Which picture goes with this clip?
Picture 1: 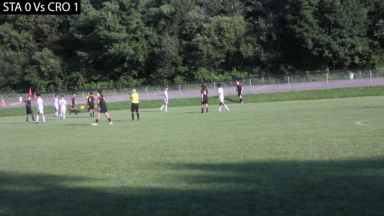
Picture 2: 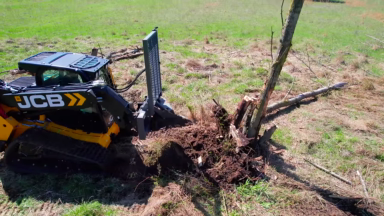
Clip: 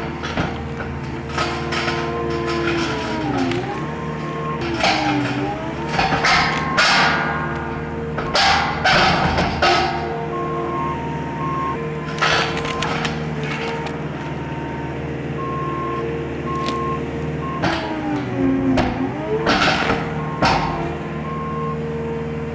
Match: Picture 2